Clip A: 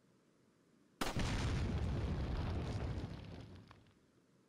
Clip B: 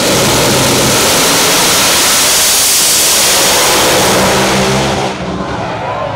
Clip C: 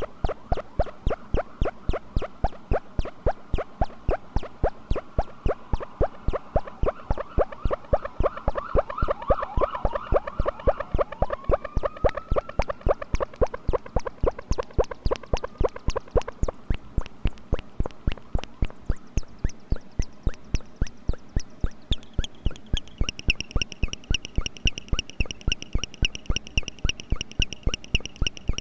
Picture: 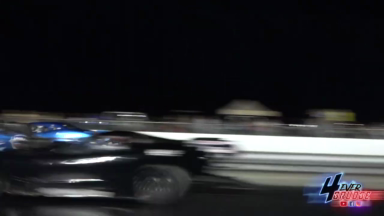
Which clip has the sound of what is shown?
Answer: B